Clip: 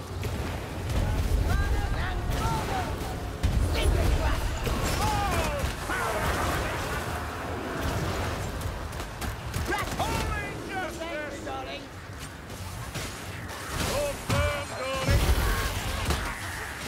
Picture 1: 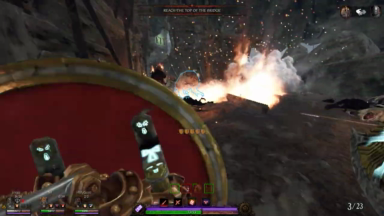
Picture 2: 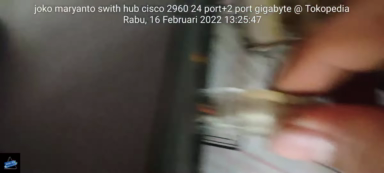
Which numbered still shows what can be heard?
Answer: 1